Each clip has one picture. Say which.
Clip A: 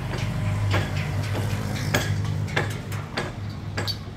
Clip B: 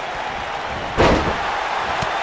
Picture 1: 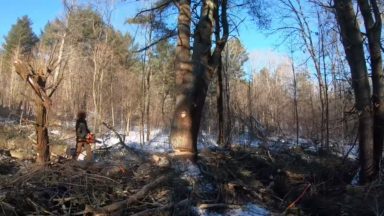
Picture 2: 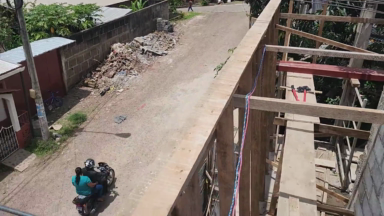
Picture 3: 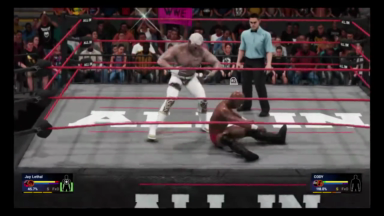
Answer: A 2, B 3